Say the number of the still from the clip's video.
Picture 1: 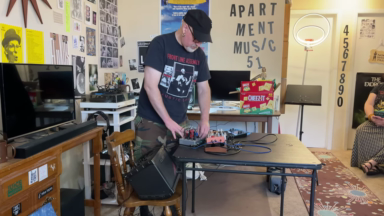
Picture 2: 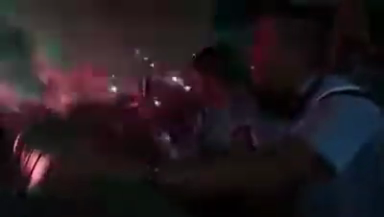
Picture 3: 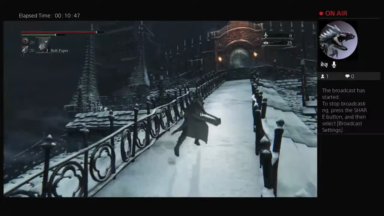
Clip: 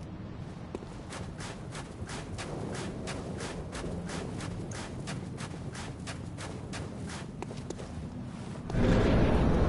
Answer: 3